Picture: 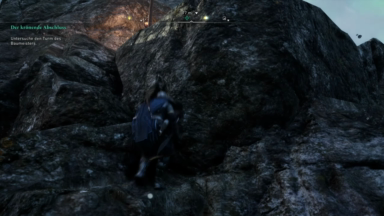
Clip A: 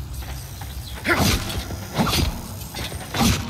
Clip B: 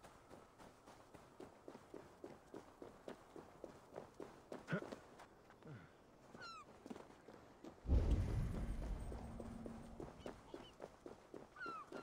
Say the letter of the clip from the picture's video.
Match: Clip B